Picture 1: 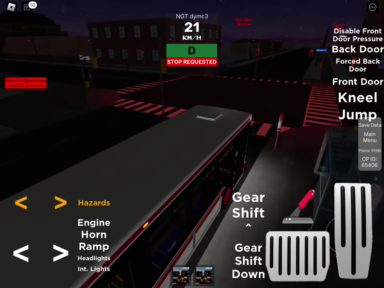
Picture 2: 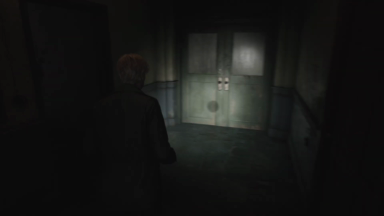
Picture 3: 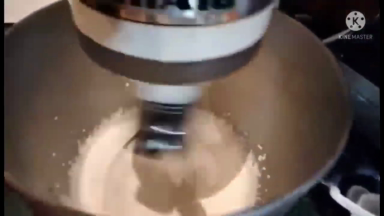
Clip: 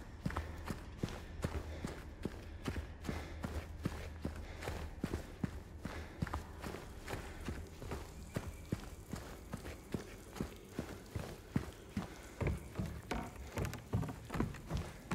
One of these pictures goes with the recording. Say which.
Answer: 2